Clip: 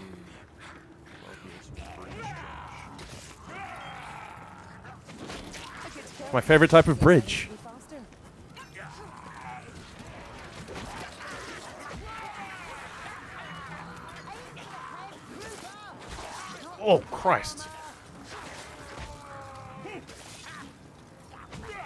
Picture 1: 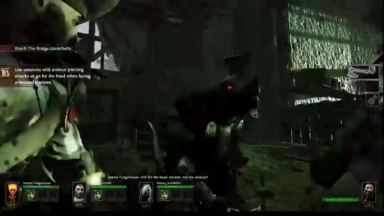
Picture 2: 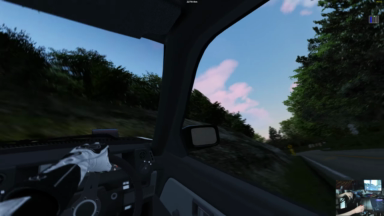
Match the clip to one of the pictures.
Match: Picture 1